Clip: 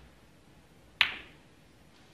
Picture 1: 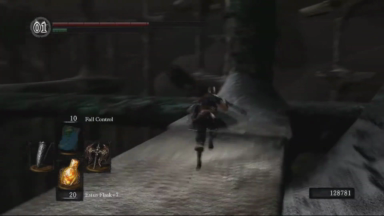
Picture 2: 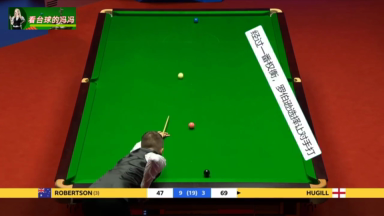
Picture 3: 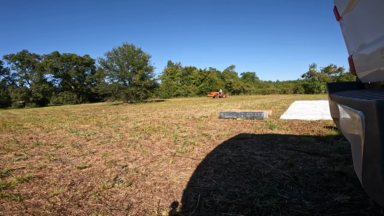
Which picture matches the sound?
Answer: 2